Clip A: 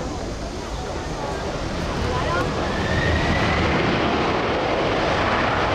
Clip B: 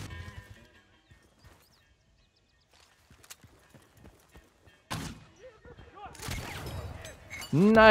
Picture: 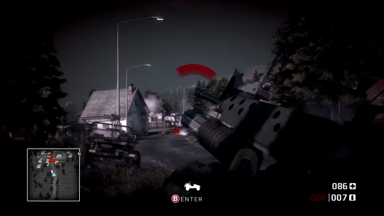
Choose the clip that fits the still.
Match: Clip B